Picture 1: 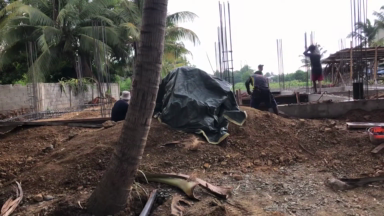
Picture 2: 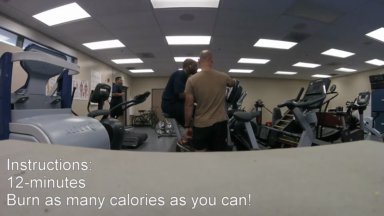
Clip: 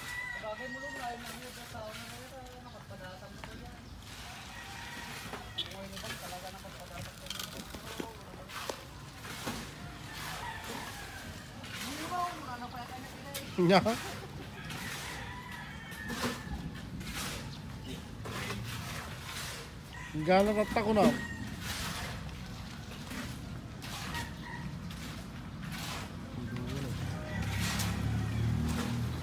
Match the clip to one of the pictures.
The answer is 1